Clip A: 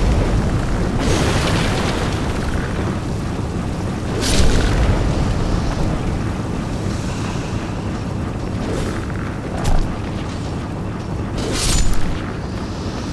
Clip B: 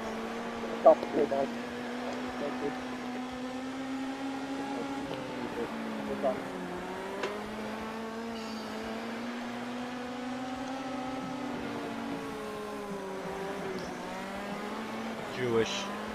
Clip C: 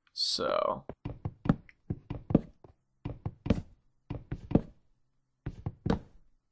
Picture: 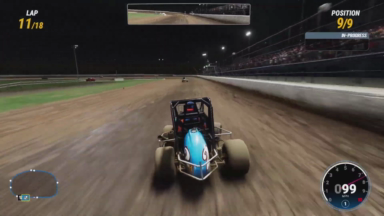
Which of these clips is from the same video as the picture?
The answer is B